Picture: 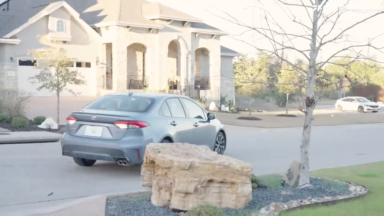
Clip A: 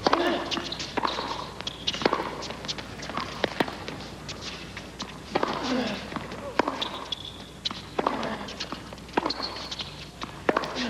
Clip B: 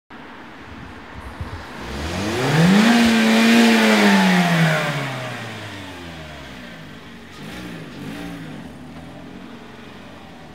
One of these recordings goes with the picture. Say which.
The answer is B